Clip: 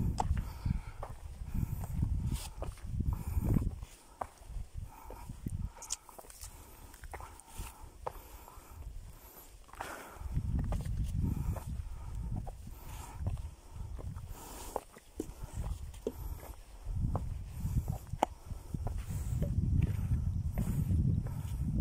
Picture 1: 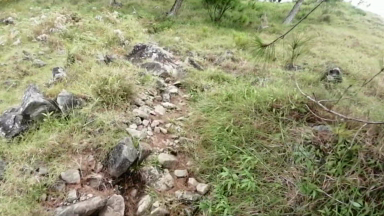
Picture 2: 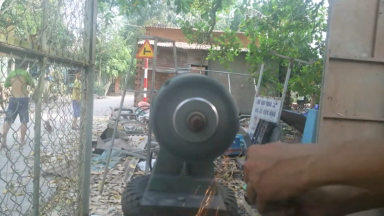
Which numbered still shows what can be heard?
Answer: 1